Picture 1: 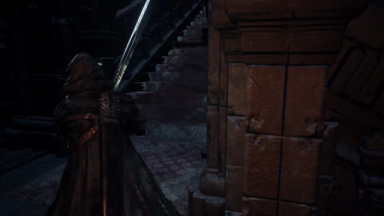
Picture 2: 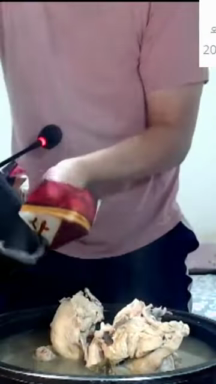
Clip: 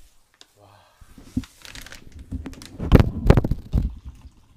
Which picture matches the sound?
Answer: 2